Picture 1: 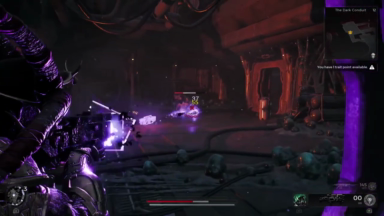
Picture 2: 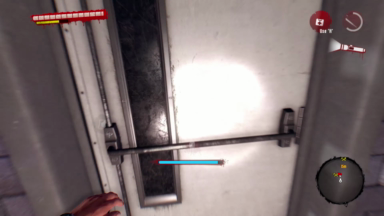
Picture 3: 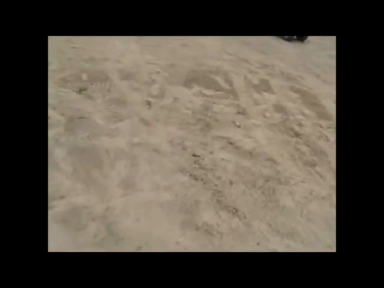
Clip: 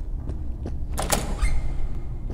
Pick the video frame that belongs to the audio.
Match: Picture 2